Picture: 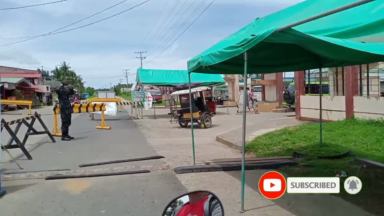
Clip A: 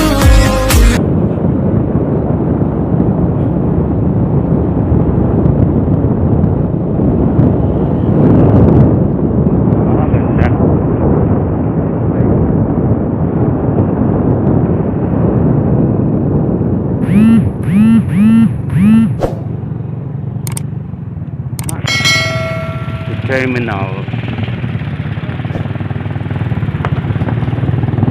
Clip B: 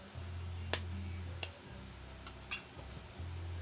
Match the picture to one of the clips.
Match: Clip A